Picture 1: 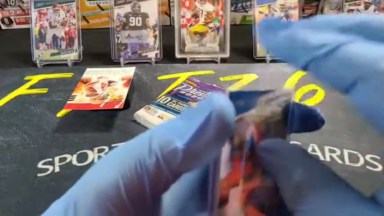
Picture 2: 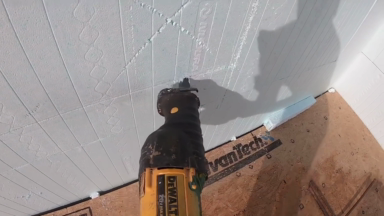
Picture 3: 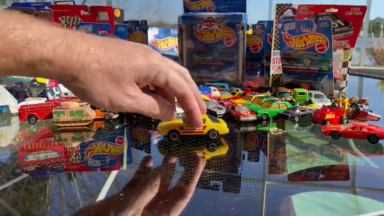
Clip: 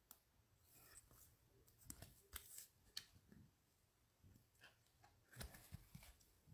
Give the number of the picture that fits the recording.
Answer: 1